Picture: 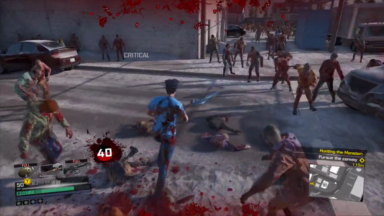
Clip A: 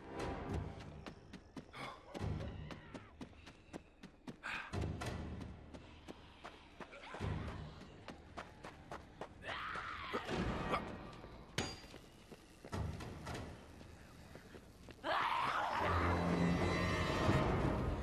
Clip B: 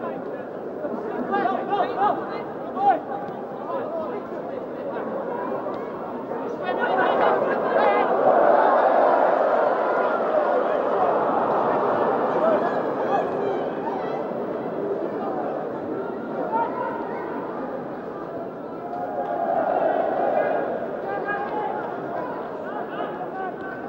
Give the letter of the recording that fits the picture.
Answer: A